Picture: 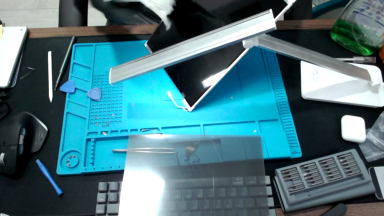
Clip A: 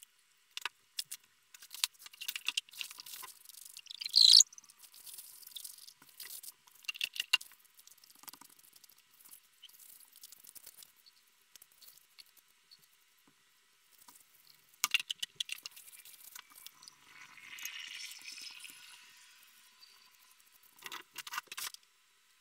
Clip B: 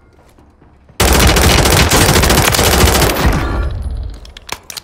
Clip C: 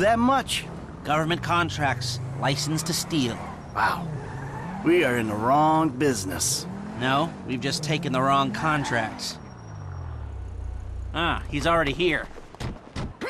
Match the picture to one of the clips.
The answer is A